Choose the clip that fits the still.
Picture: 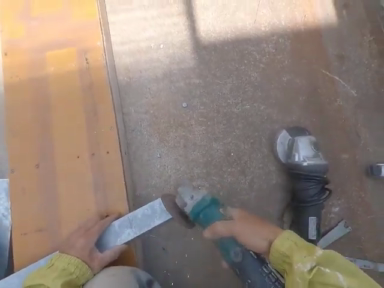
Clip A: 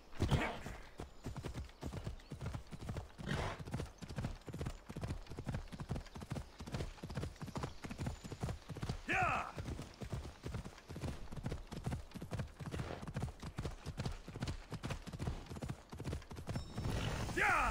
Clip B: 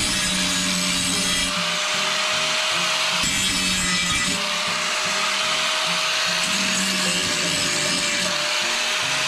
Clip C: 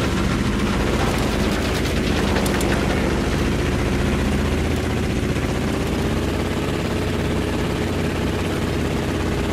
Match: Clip B